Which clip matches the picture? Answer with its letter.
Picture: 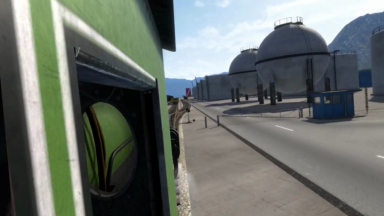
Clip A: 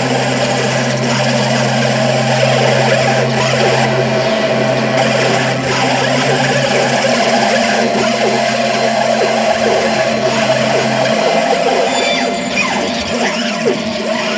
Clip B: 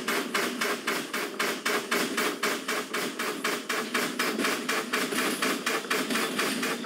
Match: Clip B